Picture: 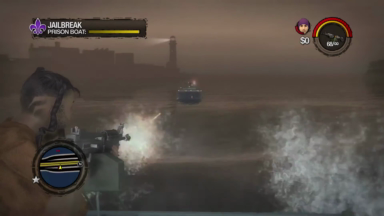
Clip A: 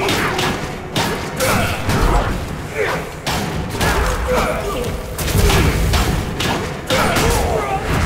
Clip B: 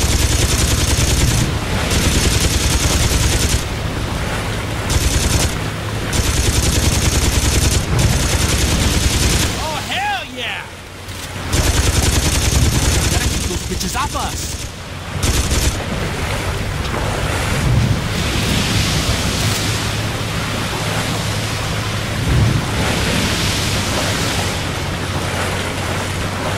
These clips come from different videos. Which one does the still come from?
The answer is B